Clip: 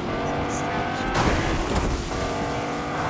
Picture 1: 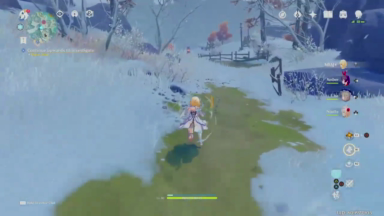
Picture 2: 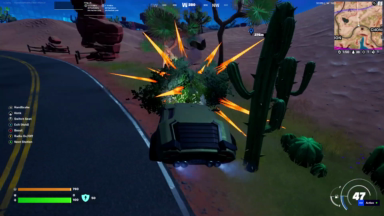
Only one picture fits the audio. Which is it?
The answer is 2